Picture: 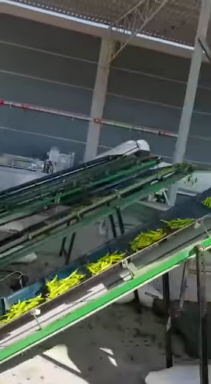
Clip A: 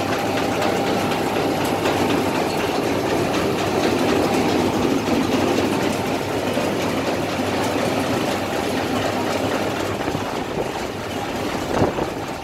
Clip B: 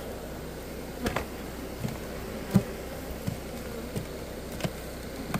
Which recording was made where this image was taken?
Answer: A